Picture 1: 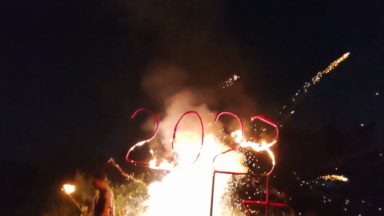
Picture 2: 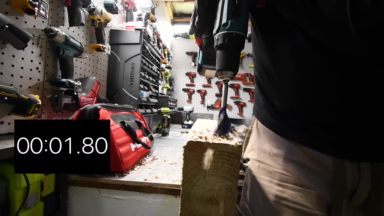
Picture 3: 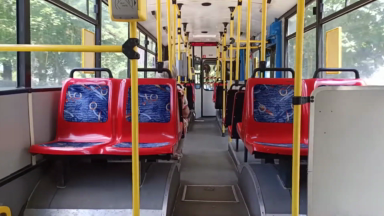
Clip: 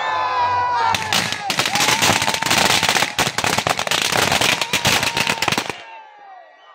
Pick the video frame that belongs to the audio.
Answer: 1